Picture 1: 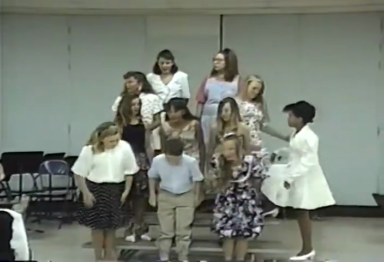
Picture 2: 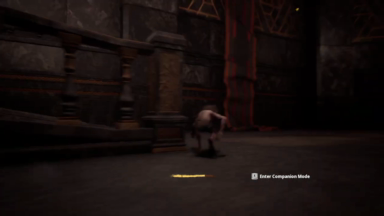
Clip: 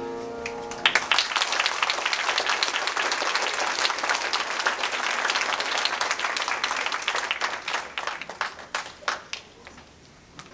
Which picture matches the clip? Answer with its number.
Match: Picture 1